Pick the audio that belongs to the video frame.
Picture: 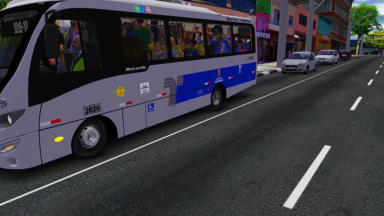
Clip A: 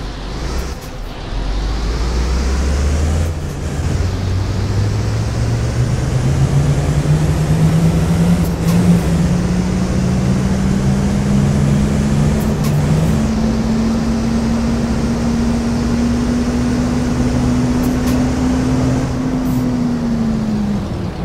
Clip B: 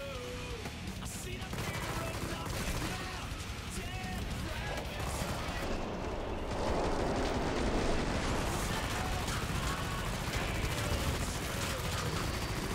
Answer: A